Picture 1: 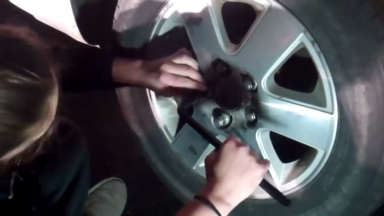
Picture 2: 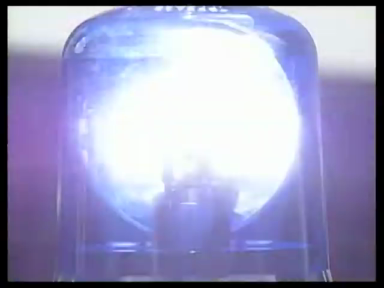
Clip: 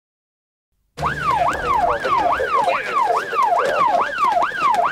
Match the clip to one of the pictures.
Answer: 2